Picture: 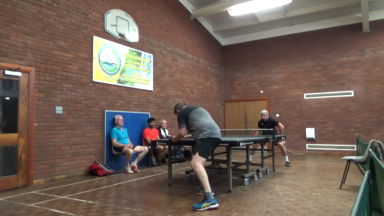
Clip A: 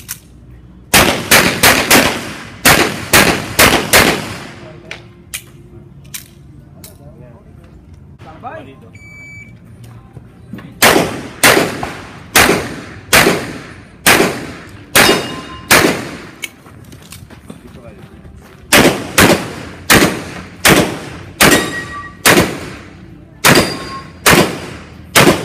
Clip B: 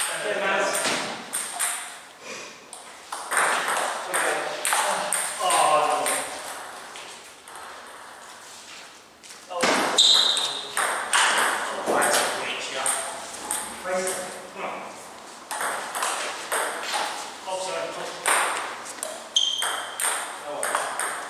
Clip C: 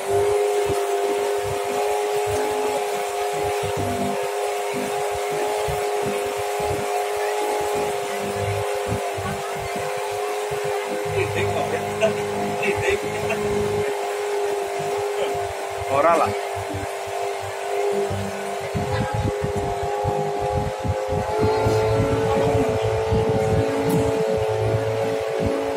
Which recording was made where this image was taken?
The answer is B